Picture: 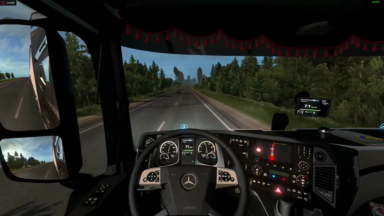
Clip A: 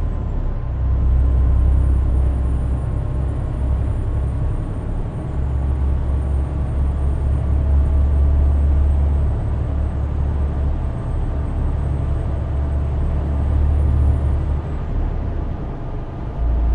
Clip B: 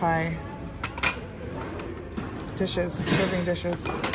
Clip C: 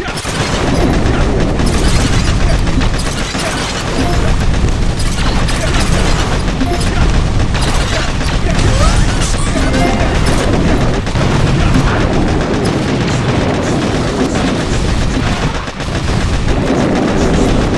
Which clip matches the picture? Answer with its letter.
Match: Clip A